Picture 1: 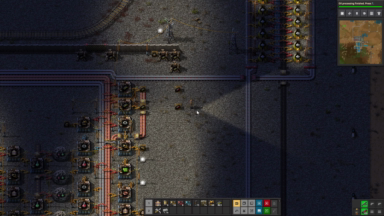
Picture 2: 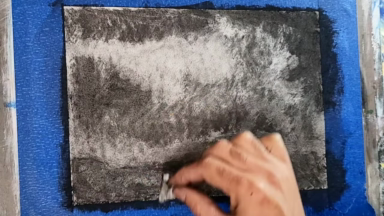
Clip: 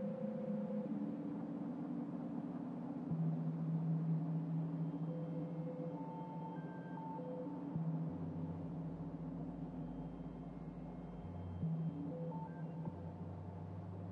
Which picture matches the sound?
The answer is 1